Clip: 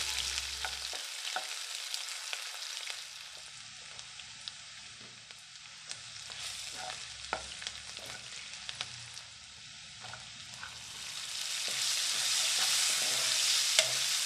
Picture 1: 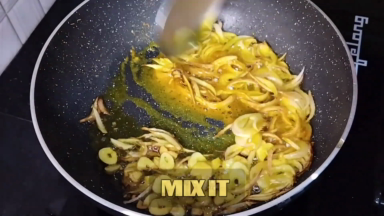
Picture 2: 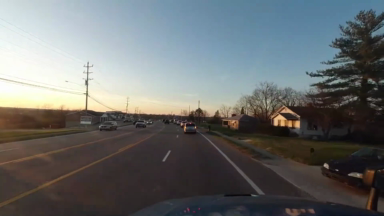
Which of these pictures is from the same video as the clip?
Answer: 1